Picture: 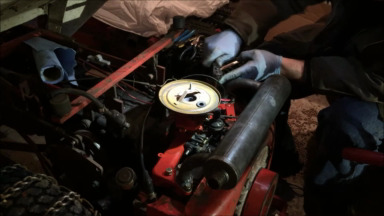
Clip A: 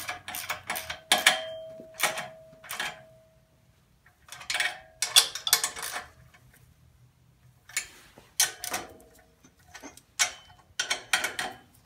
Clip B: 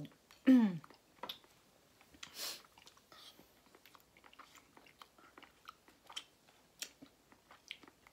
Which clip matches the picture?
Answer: A